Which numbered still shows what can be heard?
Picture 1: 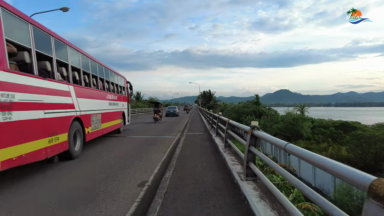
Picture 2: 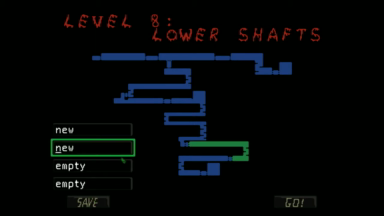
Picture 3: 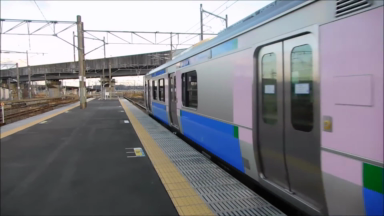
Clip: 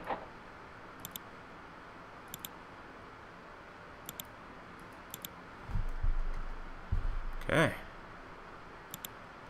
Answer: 2